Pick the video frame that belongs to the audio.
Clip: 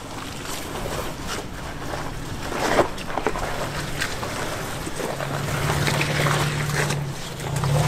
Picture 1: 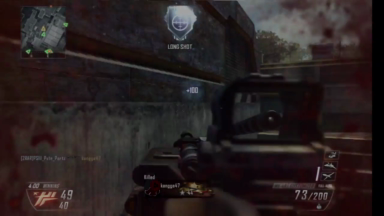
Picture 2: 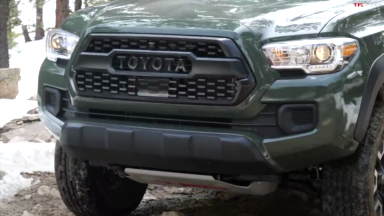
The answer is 2